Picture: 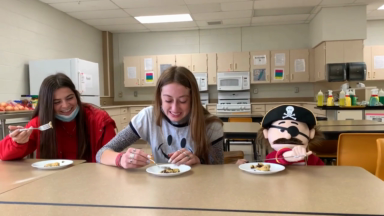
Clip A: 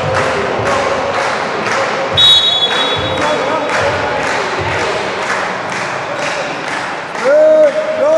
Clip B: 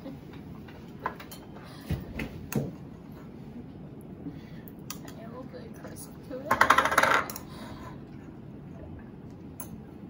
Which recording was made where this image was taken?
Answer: B